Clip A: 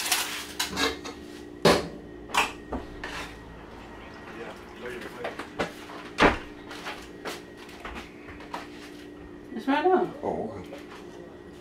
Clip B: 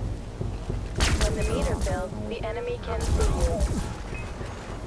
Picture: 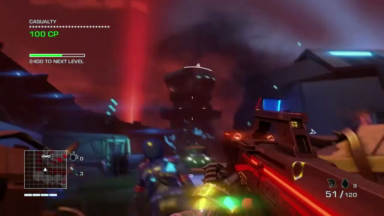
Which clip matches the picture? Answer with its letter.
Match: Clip B